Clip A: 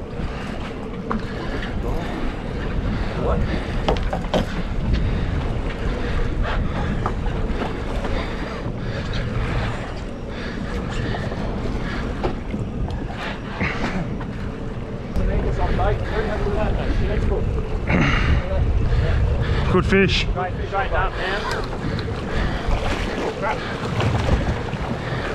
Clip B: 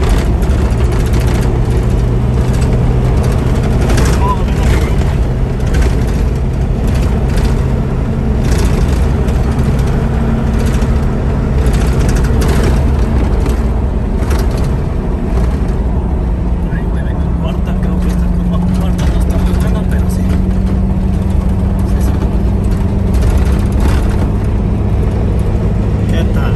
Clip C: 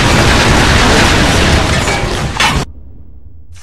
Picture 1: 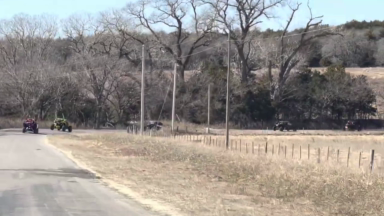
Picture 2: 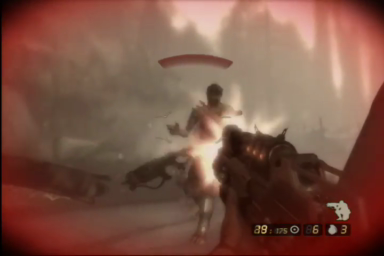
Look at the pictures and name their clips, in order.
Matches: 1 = B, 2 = C